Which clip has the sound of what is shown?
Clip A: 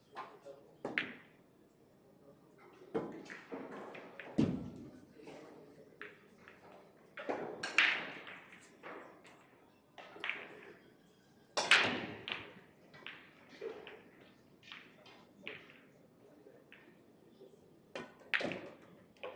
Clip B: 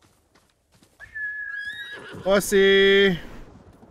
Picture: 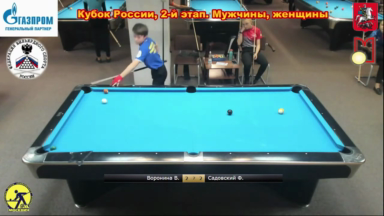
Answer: A